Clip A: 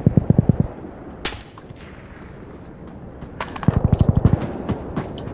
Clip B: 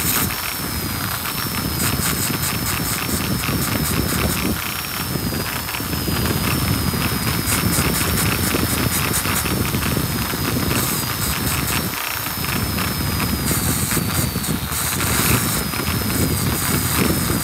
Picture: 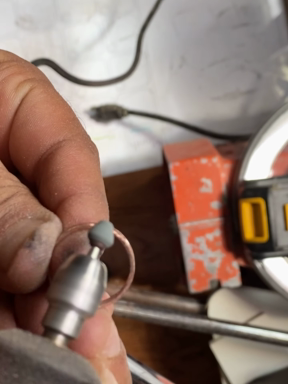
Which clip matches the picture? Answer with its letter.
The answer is B